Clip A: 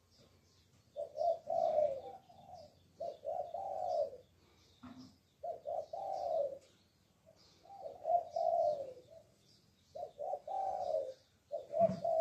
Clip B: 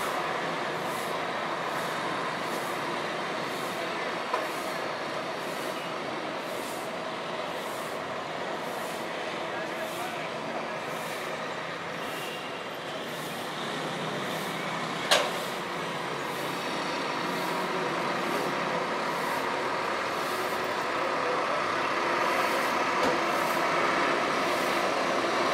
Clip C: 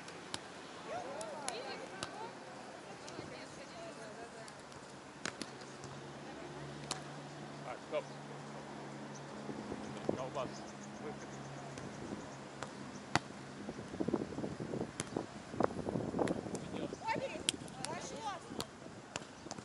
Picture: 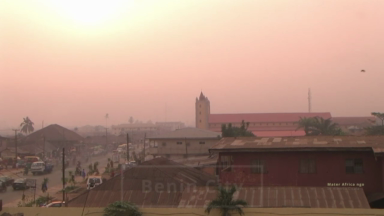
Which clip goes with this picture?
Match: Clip B